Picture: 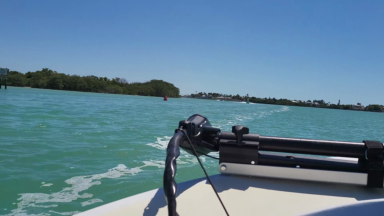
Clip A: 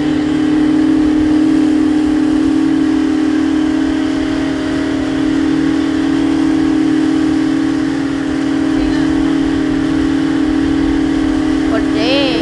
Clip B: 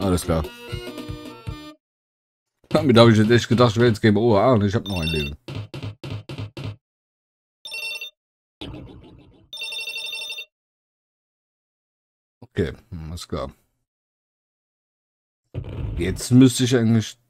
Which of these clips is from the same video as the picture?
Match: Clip A